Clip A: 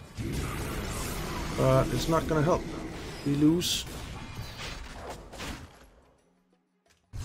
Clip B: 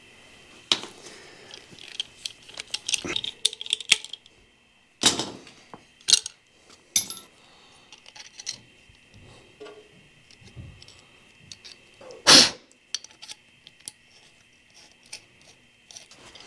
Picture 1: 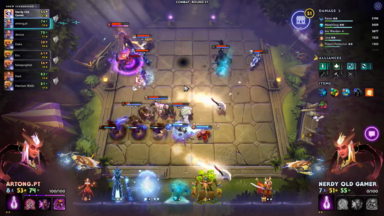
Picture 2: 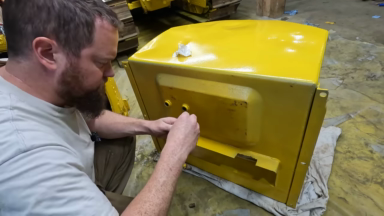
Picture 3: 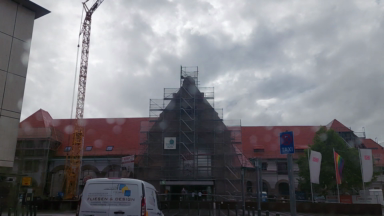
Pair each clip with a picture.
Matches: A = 1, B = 2